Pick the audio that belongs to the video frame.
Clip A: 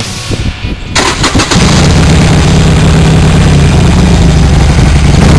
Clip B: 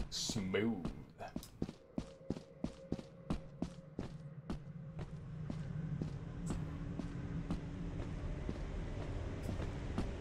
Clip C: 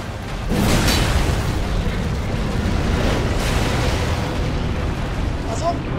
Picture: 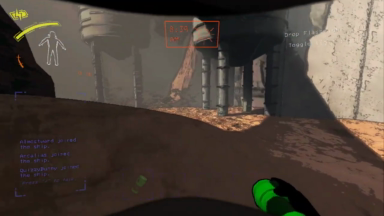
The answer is B